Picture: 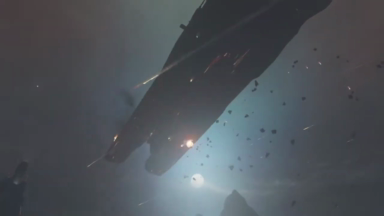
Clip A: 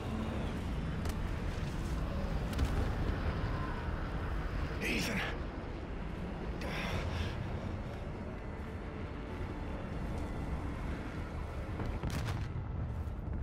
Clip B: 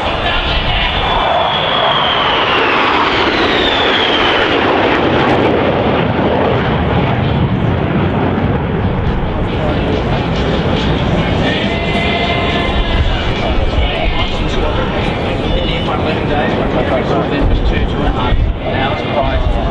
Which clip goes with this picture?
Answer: A